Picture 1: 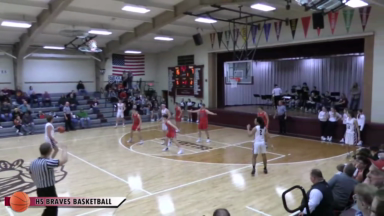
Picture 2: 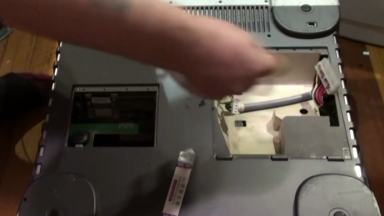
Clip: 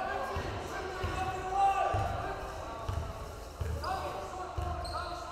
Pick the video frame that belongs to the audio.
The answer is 1